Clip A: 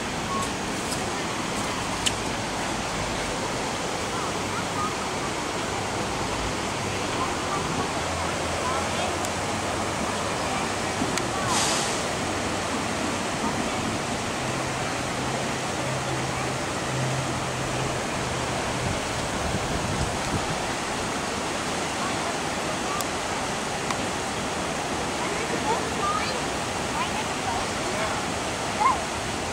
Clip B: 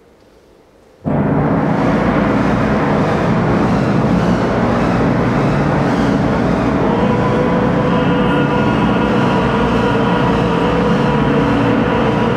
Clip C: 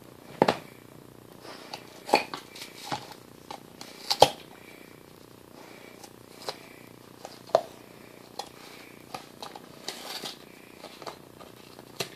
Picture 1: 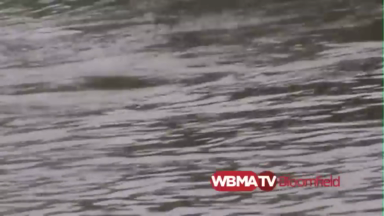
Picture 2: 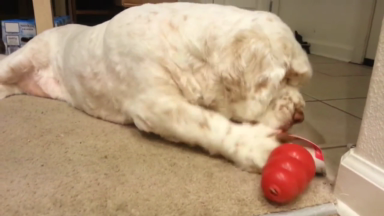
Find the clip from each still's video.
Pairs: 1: A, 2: C